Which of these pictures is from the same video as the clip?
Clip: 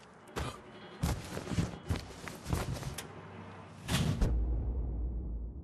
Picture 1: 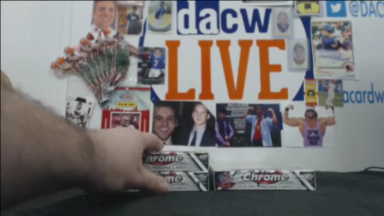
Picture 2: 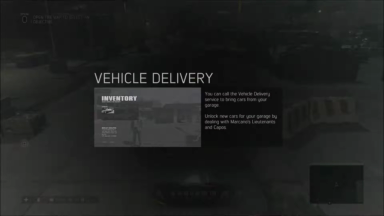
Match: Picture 2